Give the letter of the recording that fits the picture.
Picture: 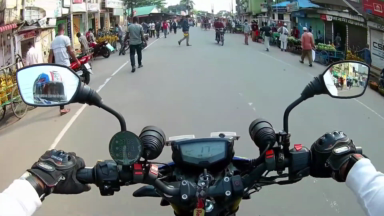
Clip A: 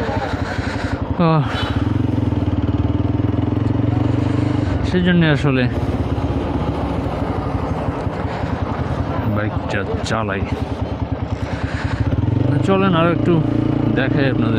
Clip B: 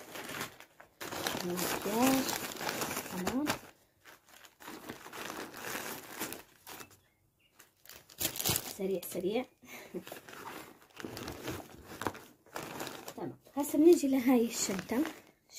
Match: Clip A